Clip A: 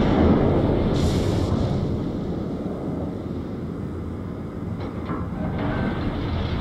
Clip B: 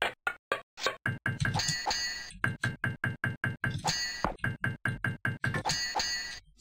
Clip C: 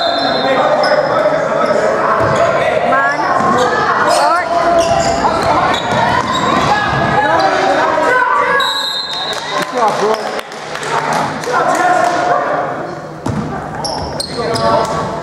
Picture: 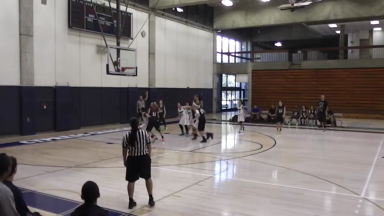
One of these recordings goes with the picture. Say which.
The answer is C